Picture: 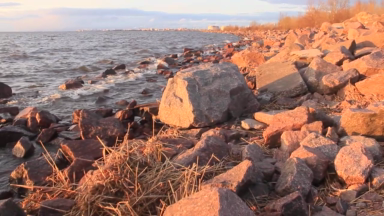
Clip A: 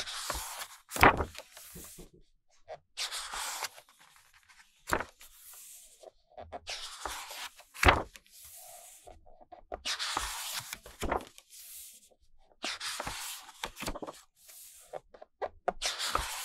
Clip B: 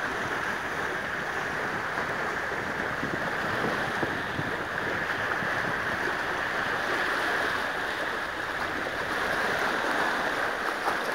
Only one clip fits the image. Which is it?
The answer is B